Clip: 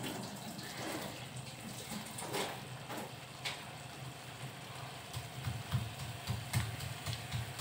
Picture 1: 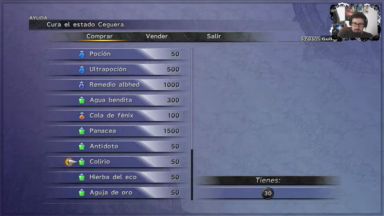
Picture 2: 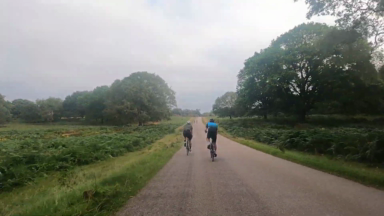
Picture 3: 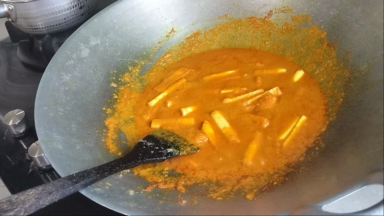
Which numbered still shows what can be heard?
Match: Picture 3